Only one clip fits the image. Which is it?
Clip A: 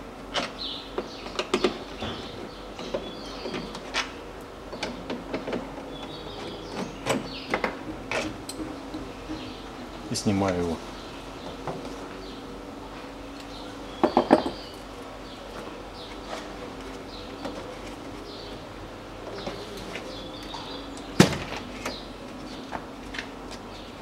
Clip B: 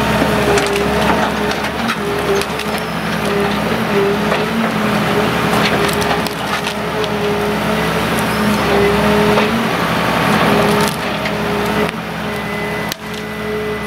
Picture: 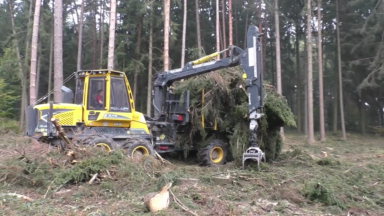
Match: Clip B